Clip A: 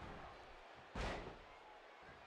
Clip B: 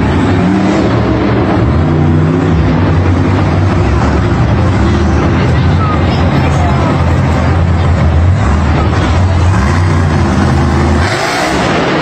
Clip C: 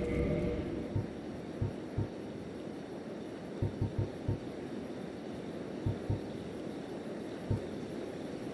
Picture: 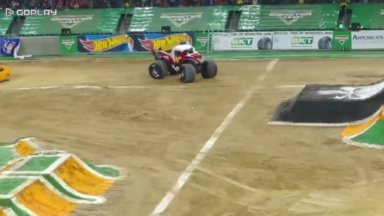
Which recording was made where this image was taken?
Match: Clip B